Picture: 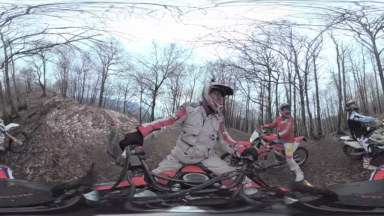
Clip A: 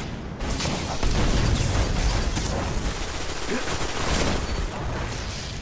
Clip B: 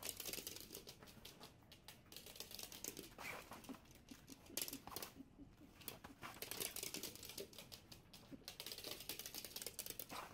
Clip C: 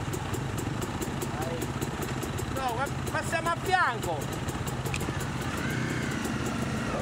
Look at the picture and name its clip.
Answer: C